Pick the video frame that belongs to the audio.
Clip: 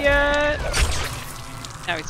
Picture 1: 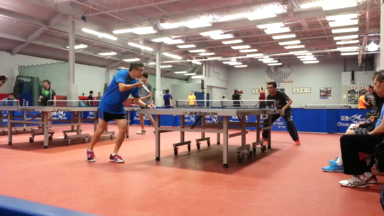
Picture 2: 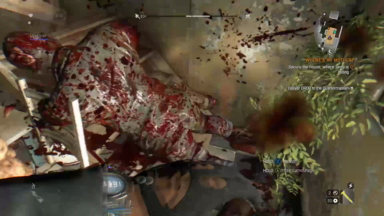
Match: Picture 2